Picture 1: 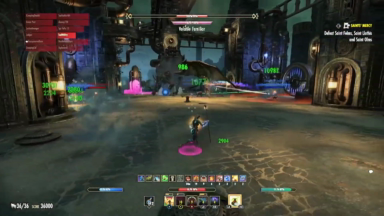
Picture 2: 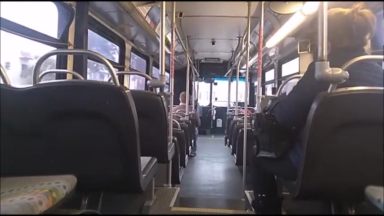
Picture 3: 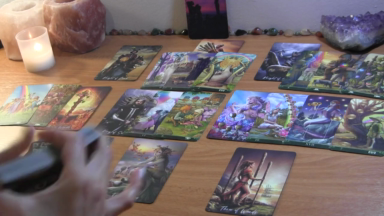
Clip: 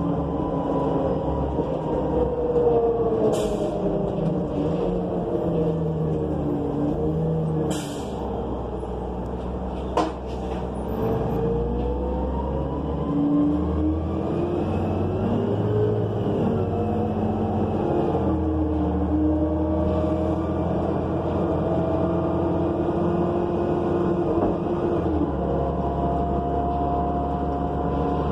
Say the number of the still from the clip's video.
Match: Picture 2